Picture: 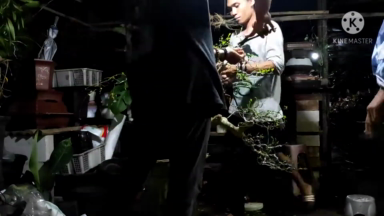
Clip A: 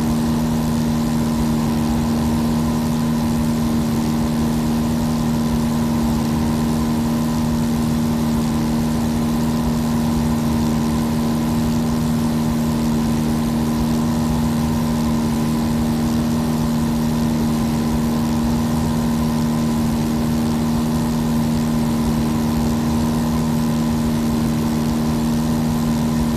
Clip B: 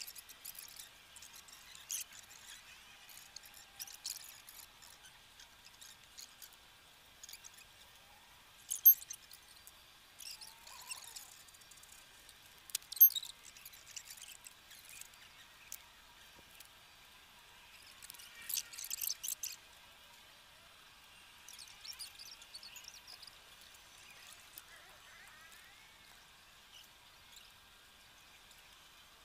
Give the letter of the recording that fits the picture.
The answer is B